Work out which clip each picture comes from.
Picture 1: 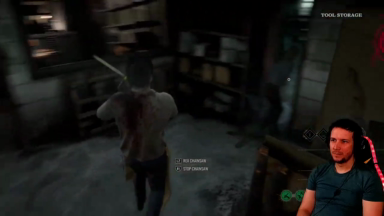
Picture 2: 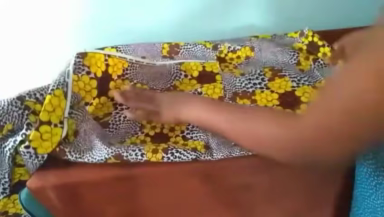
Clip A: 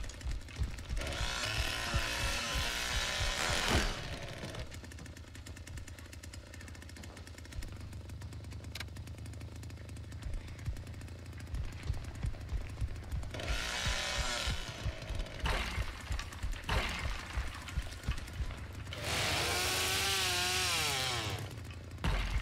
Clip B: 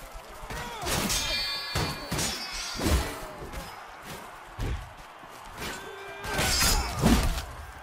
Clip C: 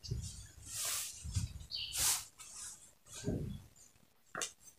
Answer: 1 A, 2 C